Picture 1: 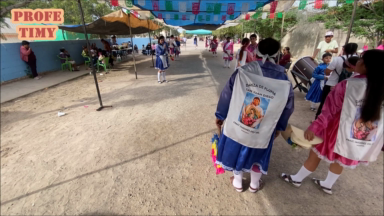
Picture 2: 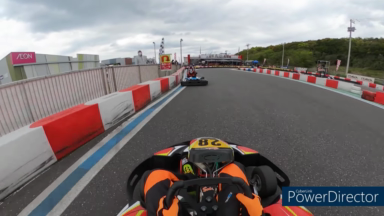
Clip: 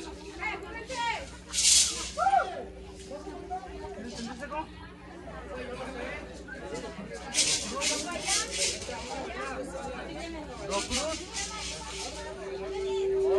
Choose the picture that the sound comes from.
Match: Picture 1